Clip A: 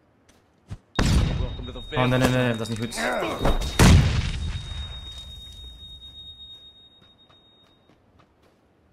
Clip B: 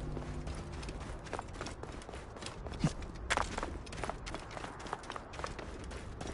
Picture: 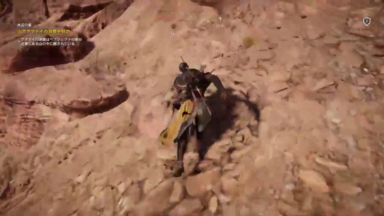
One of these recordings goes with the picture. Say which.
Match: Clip B